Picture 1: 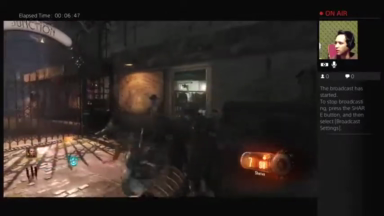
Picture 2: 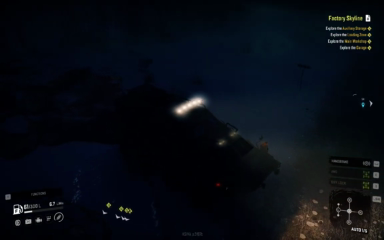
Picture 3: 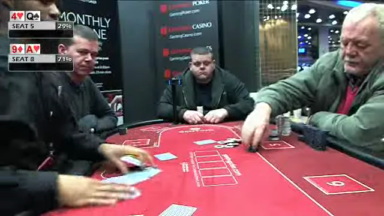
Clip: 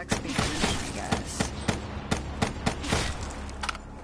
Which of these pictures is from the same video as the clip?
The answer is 1